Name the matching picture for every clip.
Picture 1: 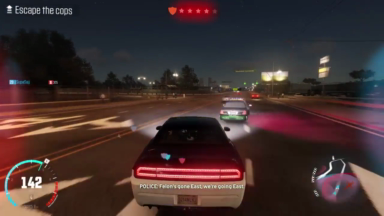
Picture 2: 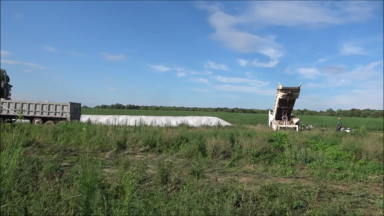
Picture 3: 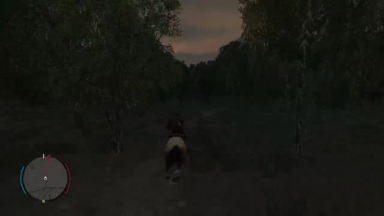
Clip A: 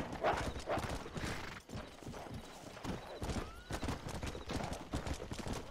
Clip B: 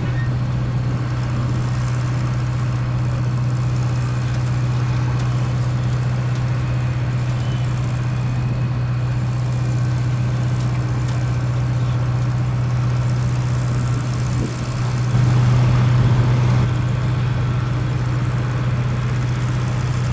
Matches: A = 3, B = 2